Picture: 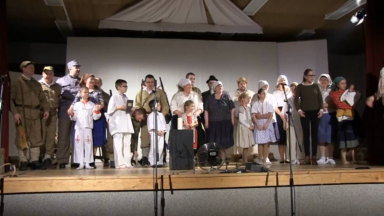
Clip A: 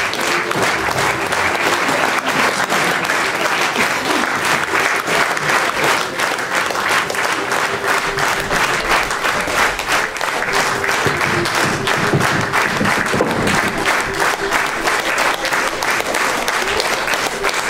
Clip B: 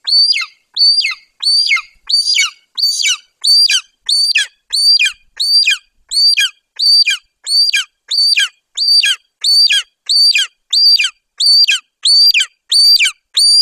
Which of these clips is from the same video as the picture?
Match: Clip A